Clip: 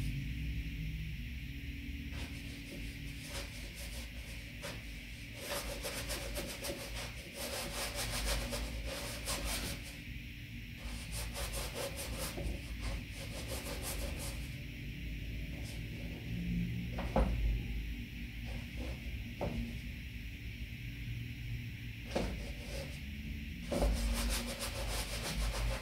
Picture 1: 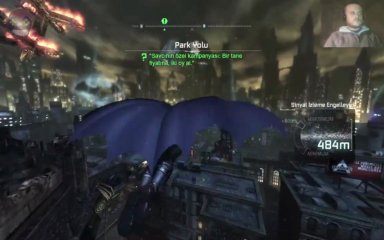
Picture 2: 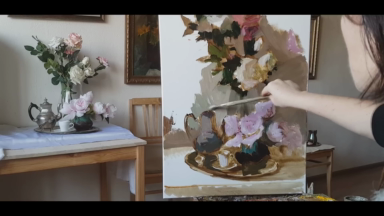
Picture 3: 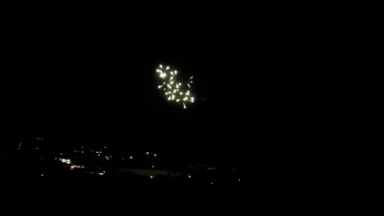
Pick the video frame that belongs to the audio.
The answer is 2